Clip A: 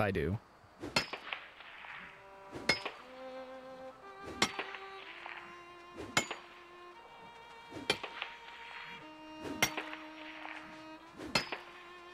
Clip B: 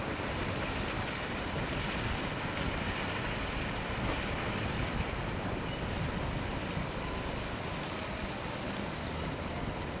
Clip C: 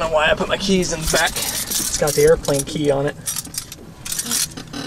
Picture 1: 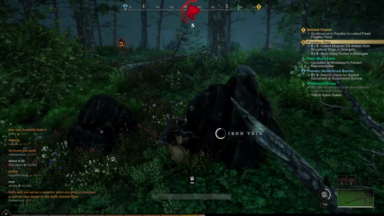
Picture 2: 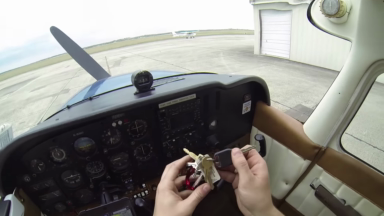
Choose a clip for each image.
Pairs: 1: A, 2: C